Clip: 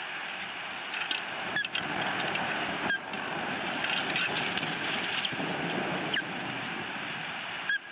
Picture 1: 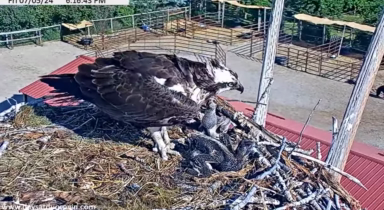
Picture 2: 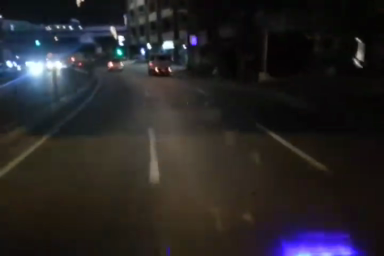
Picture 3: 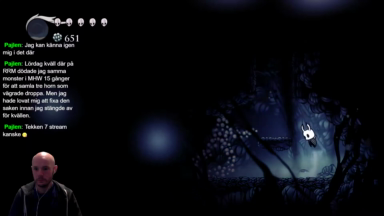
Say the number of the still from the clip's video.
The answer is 1